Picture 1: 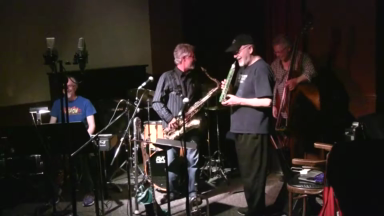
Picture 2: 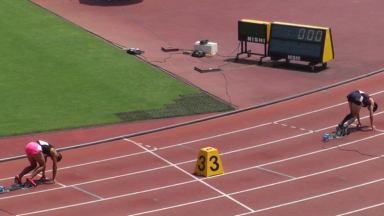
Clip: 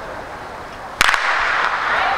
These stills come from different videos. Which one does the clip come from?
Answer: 2